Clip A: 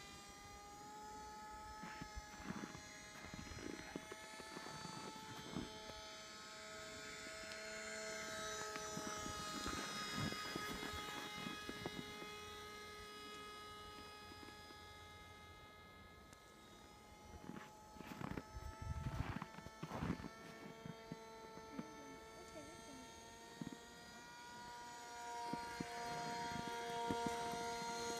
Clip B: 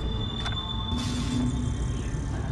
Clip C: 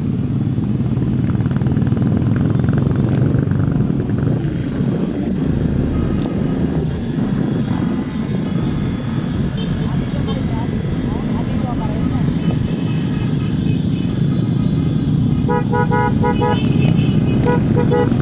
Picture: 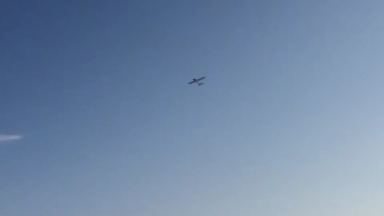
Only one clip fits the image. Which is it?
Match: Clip A